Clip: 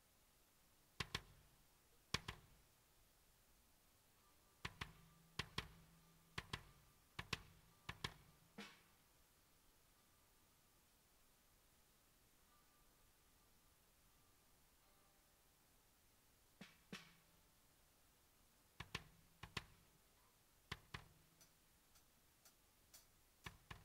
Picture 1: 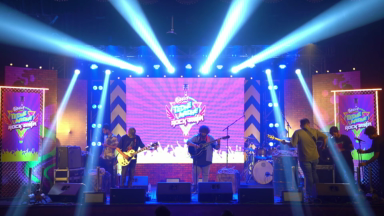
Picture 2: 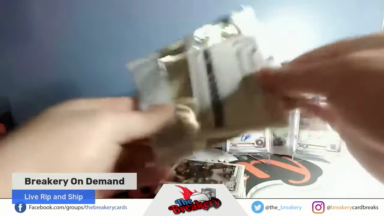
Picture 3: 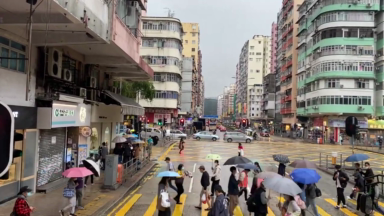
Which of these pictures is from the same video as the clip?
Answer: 1